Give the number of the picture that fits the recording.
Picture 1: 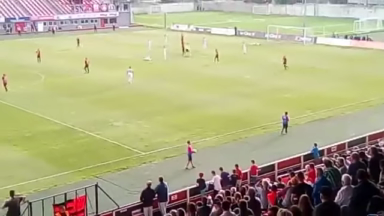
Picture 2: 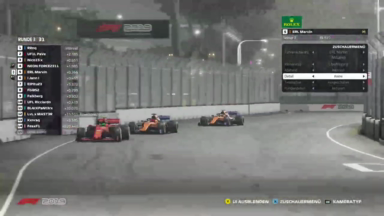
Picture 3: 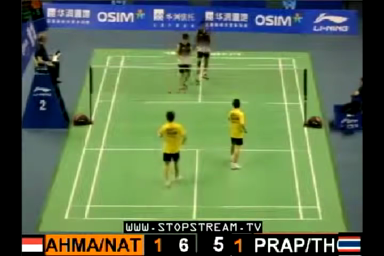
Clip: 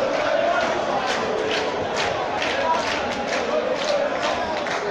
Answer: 1